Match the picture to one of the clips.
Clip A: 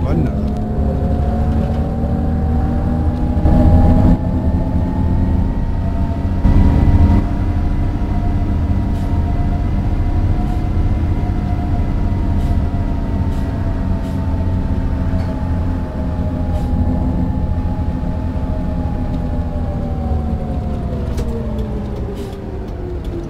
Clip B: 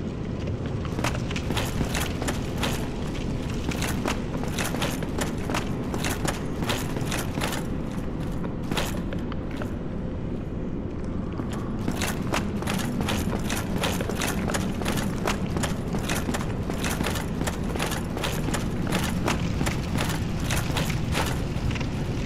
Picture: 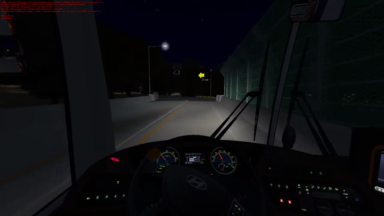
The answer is A